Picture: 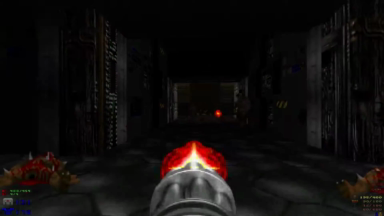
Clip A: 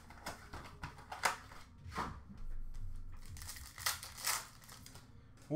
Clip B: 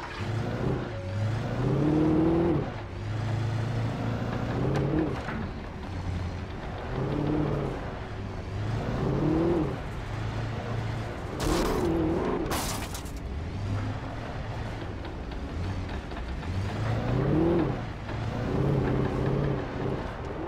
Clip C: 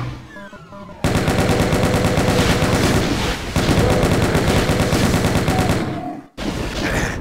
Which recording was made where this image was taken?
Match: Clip C